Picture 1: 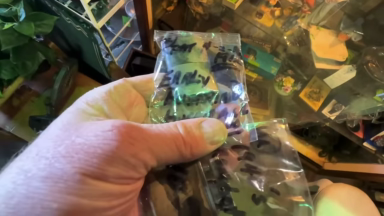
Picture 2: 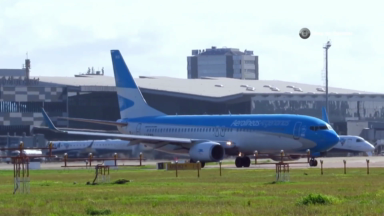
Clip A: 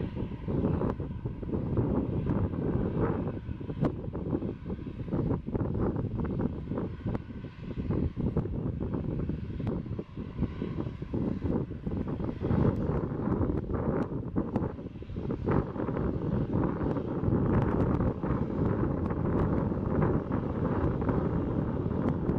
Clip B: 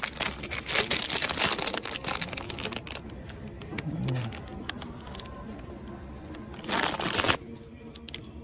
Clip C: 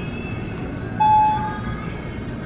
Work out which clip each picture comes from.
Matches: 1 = B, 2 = A